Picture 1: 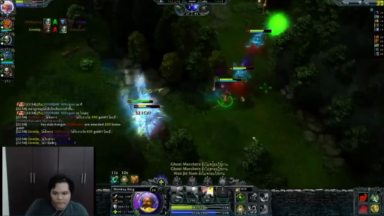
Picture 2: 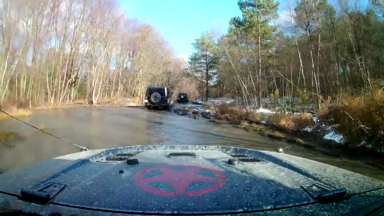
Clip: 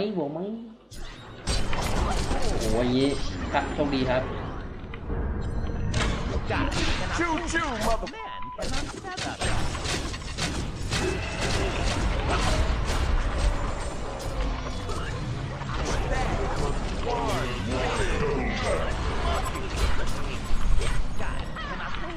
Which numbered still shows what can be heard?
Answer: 1